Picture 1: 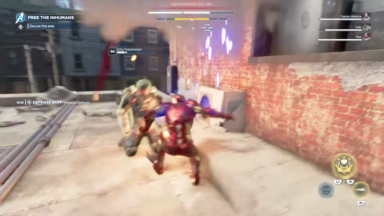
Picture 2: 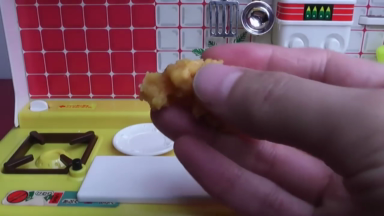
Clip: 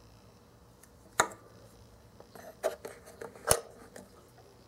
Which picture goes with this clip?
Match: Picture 2